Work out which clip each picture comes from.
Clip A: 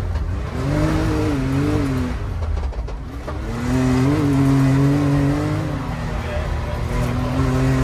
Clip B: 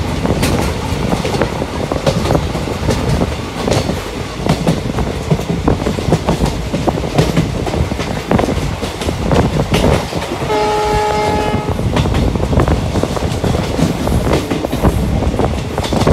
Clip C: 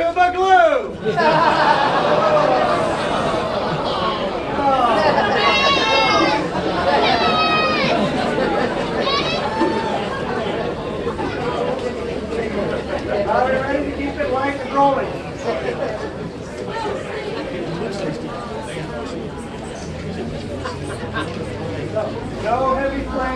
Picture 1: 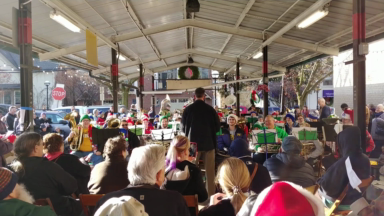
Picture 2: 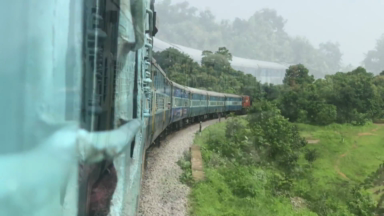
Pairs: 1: C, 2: B